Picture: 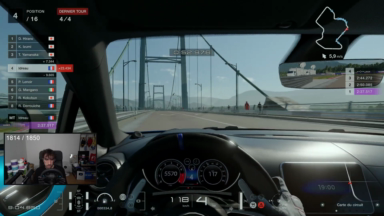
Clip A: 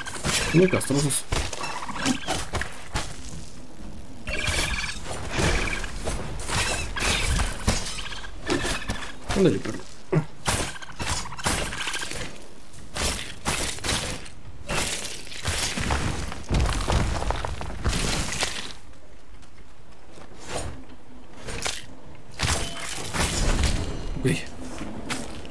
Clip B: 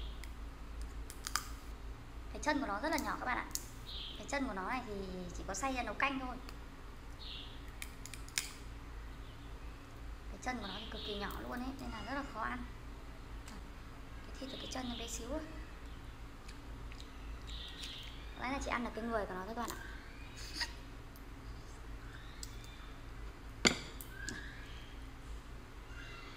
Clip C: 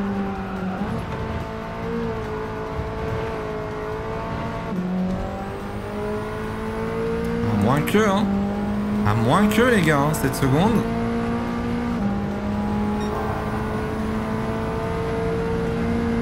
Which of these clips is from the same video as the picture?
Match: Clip C